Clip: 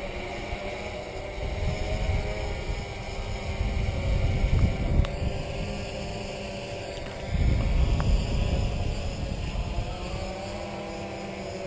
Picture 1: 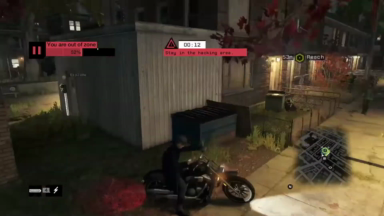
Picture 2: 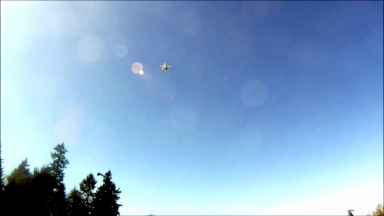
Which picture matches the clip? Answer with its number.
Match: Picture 2